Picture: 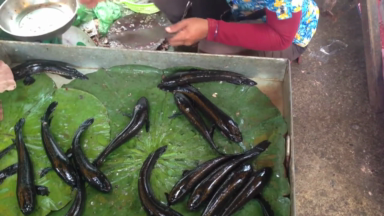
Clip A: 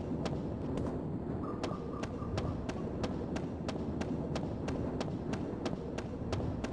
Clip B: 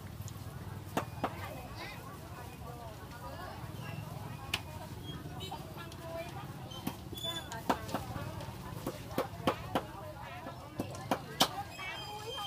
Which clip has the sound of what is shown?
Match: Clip B